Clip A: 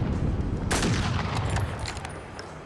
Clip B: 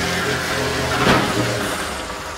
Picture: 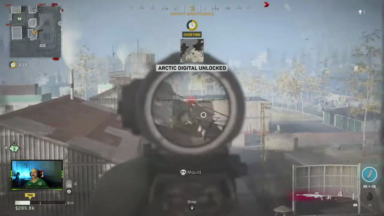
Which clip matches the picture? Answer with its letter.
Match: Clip A